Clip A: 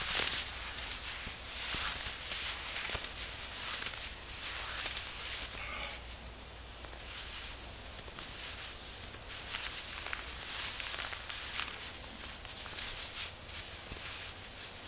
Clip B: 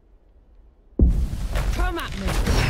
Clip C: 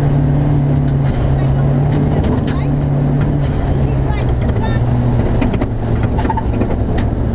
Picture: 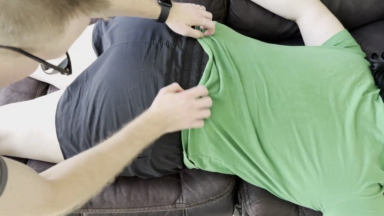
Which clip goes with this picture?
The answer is A